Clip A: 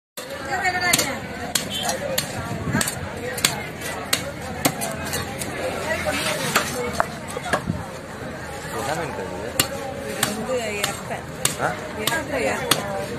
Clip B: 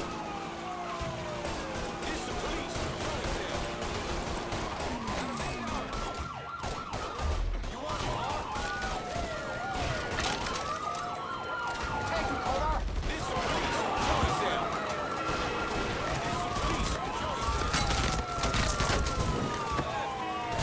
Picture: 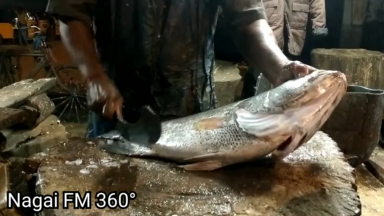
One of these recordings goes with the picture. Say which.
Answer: A